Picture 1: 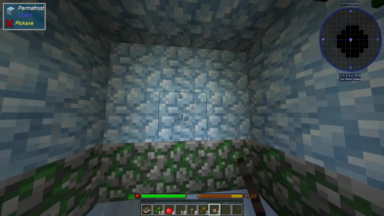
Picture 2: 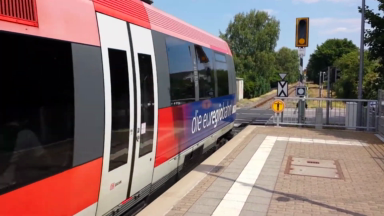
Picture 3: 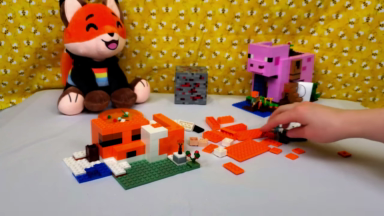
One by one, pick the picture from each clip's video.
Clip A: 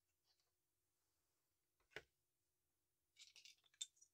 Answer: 3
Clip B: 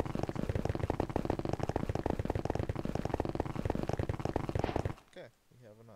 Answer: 1